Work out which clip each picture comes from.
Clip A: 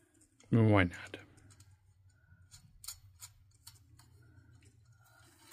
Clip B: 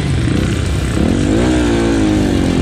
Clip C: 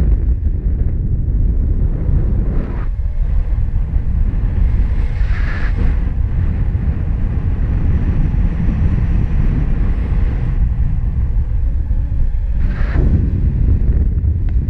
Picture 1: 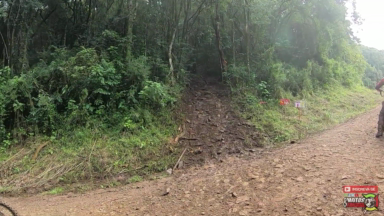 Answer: B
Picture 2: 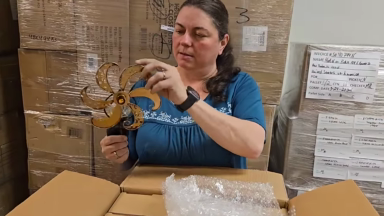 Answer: A